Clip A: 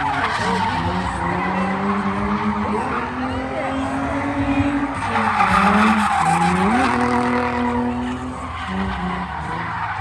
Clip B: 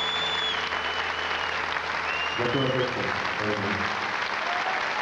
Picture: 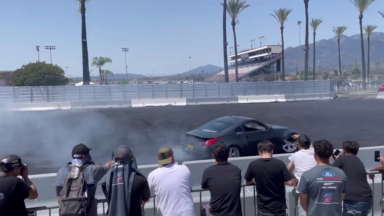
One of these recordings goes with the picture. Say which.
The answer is A